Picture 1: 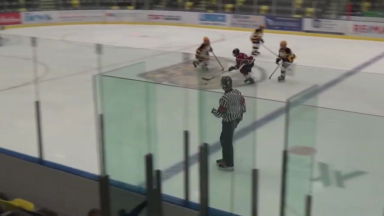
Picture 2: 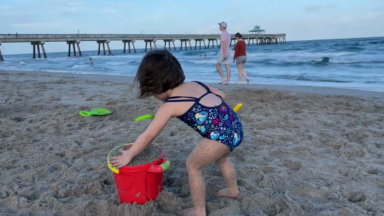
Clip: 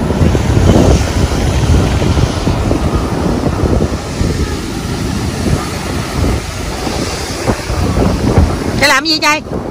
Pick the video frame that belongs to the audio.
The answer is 2